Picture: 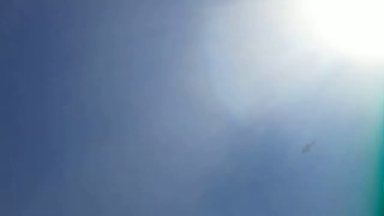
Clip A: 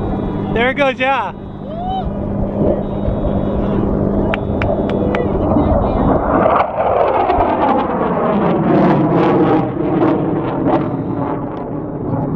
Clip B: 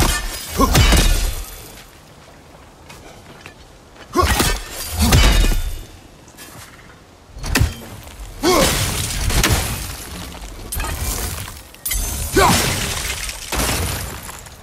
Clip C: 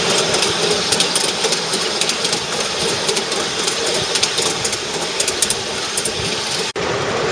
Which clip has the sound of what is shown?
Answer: A